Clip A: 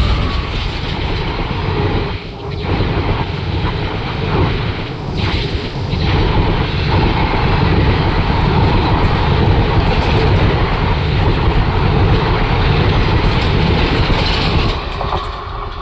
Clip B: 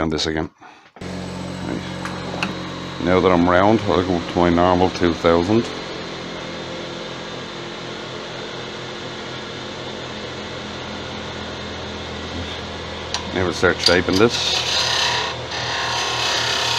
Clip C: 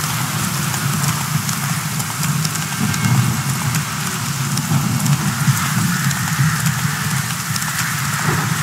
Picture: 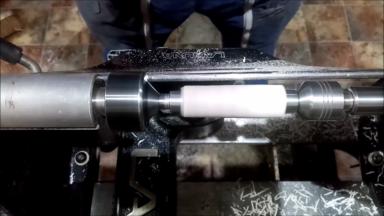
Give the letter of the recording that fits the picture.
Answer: B